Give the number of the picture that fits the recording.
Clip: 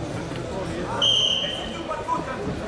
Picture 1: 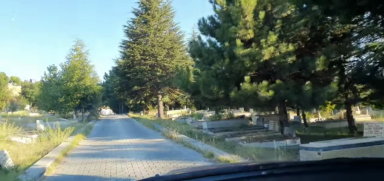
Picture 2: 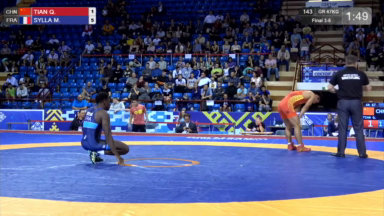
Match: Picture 2